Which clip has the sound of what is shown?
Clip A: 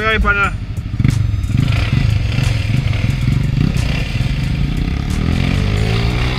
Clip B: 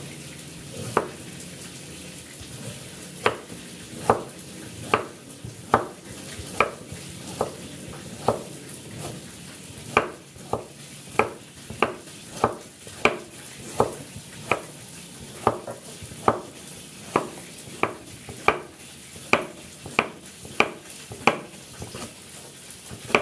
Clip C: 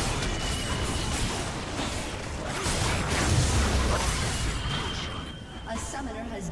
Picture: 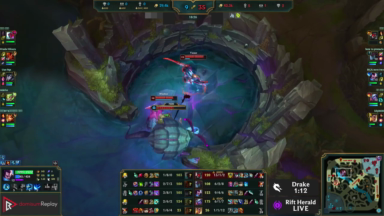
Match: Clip C